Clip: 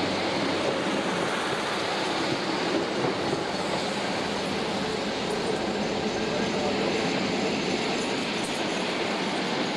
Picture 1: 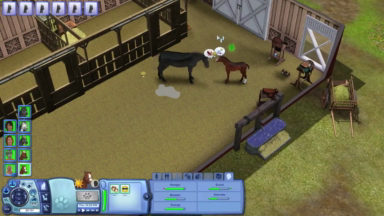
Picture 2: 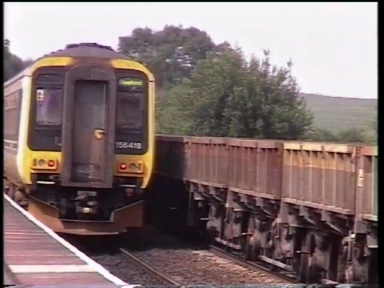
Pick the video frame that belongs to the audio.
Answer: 2